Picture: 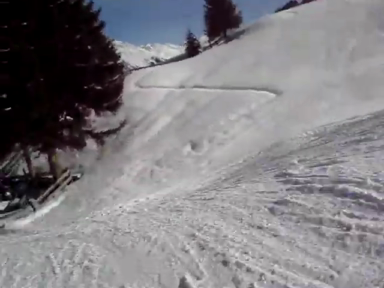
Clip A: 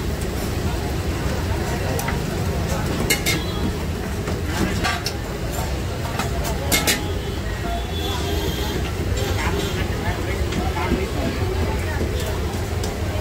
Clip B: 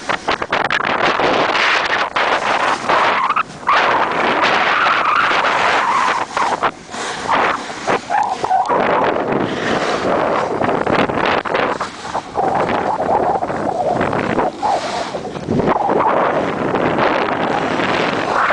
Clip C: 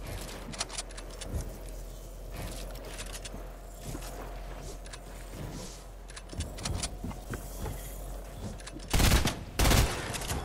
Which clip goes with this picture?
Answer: B